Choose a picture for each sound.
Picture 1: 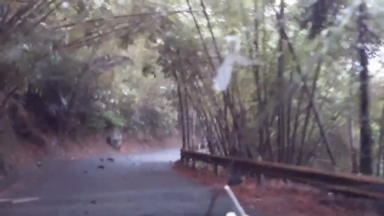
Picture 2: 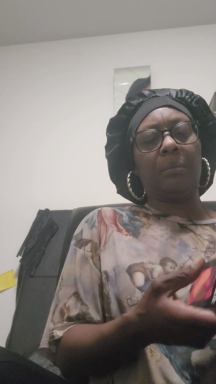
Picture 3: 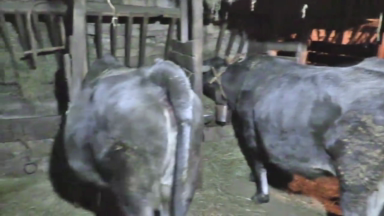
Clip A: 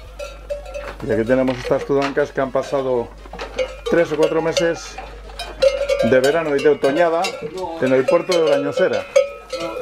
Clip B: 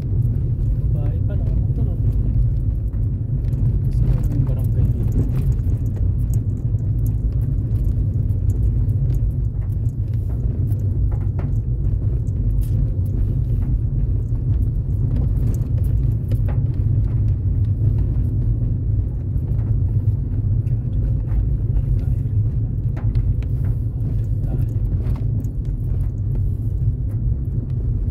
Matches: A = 3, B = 1